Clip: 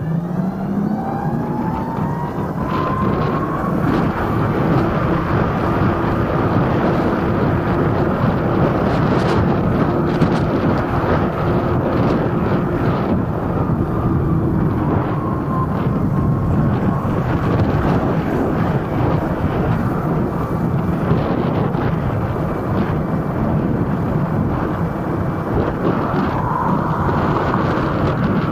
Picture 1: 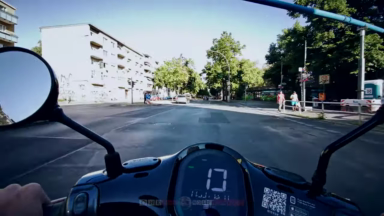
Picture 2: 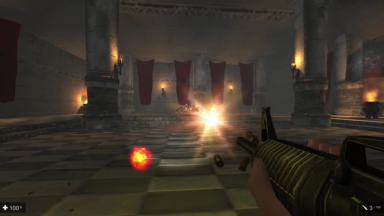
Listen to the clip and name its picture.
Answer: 1